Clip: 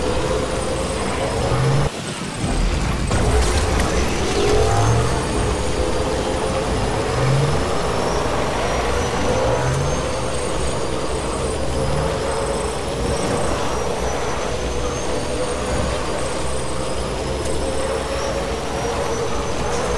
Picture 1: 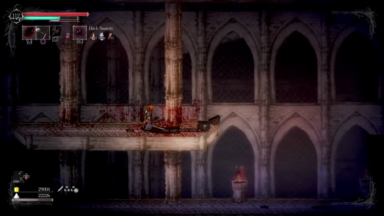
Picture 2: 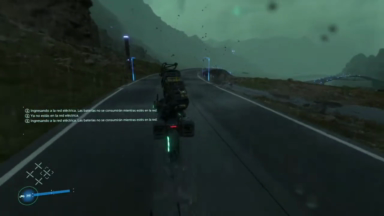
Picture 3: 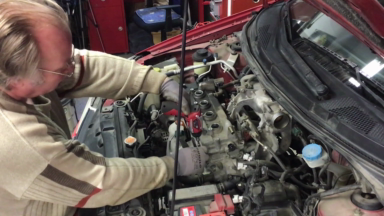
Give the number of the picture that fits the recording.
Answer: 2